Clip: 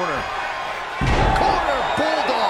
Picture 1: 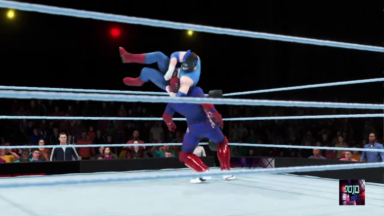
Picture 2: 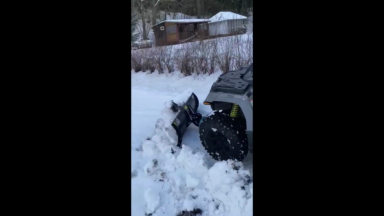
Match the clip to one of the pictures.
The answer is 1